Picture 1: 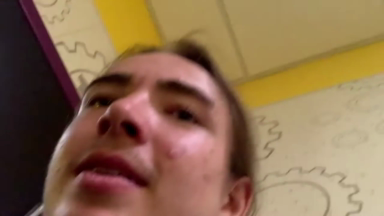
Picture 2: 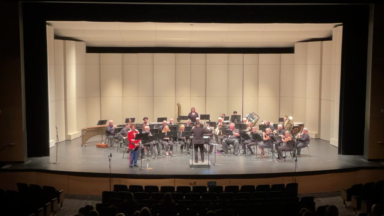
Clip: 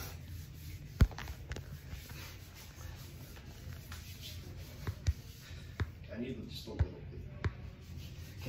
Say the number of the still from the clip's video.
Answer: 1